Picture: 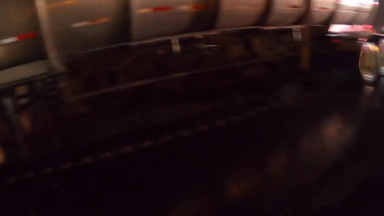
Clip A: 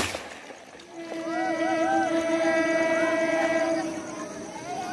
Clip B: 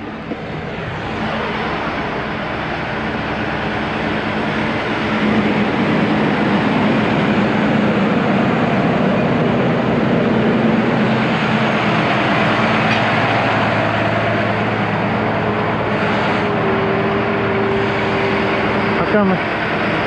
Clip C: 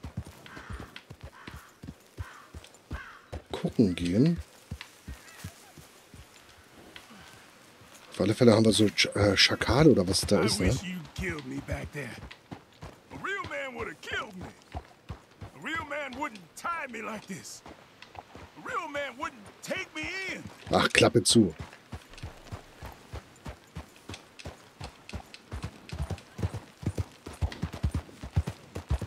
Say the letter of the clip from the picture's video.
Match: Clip B